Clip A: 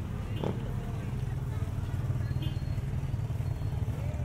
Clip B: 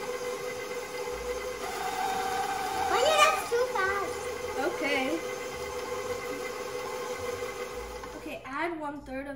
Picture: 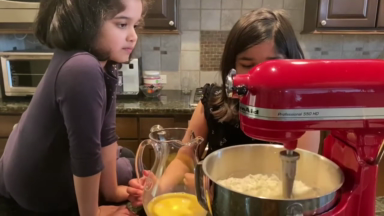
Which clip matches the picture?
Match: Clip B